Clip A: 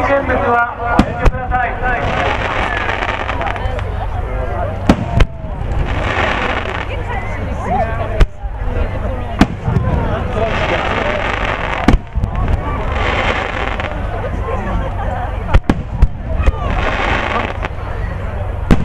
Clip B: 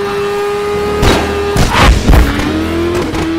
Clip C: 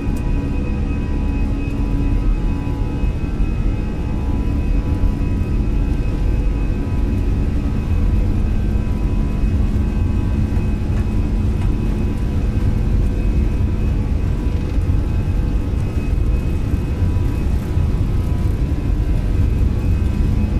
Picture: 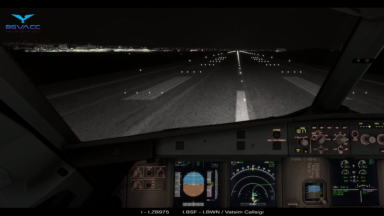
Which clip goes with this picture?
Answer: C